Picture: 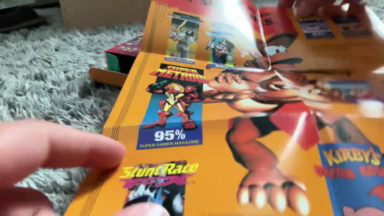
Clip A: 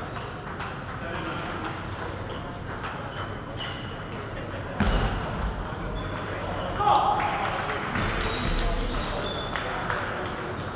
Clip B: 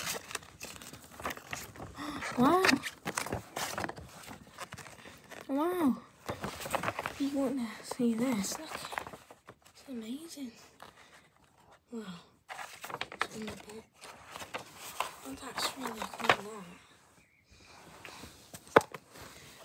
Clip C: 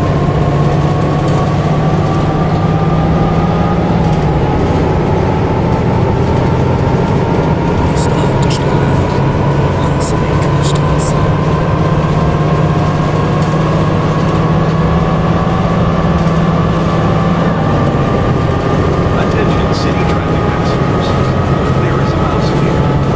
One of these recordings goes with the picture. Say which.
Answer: B